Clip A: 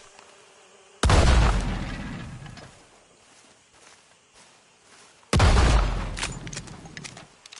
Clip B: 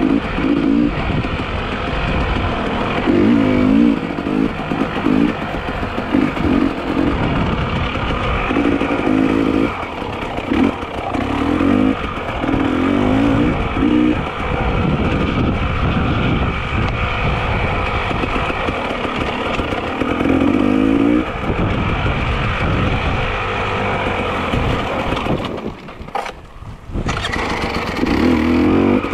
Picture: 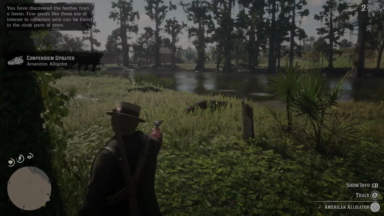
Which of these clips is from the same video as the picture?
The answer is A